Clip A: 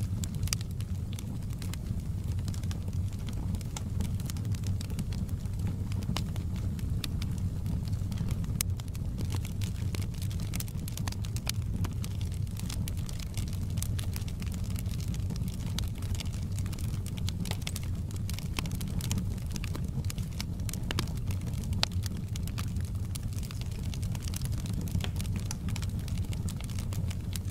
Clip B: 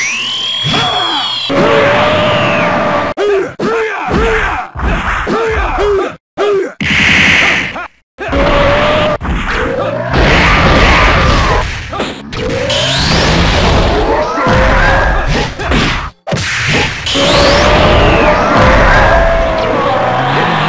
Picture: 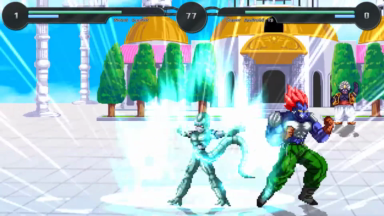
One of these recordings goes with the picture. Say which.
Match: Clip B